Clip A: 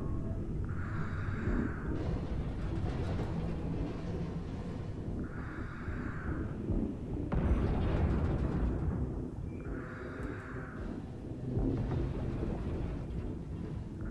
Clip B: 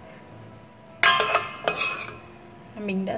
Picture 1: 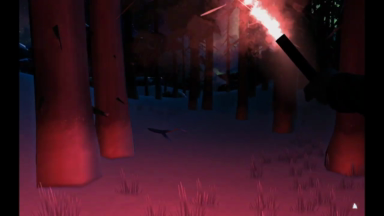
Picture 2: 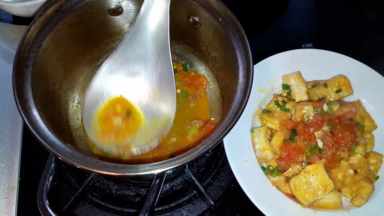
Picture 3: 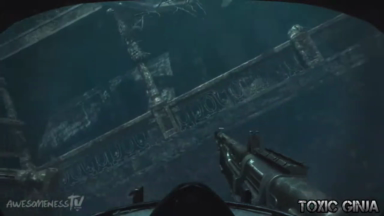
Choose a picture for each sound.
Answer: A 3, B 2